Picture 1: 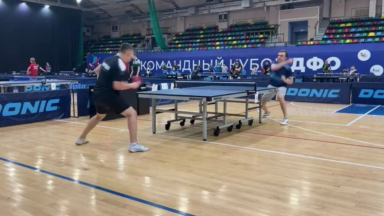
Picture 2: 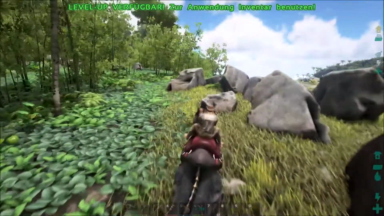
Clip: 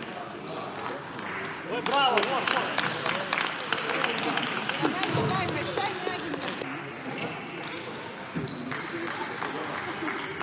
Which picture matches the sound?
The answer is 1